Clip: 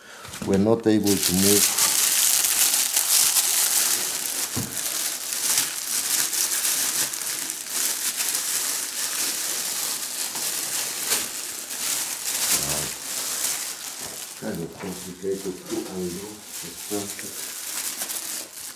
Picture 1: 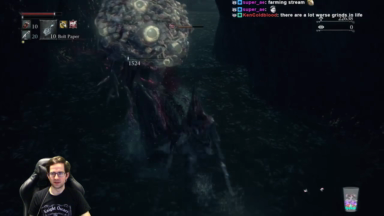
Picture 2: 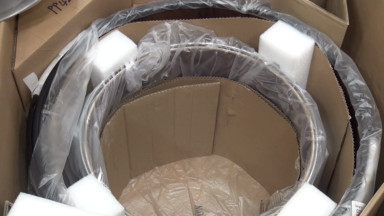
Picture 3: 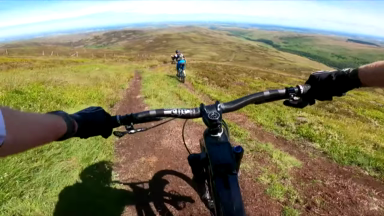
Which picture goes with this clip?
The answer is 2